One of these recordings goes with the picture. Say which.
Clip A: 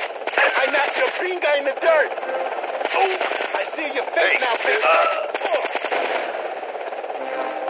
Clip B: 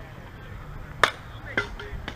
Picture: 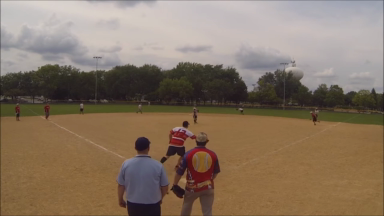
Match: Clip B